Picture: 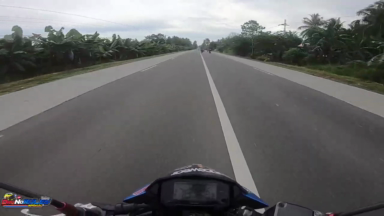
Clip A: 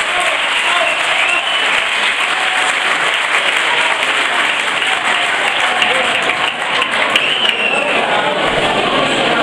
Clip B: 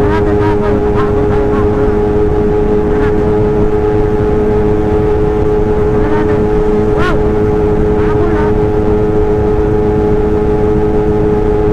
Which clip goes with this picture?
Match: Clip B